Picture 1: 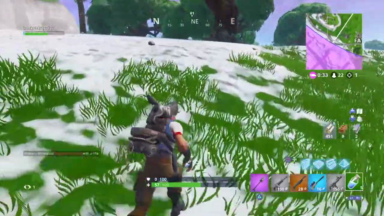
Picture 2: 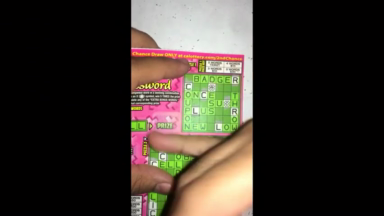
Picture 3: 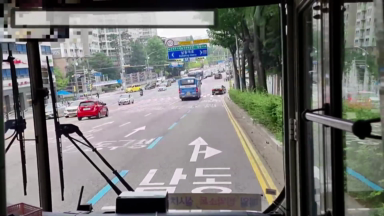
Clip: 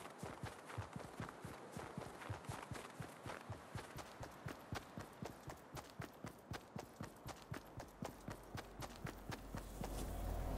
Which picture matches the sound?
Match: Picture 1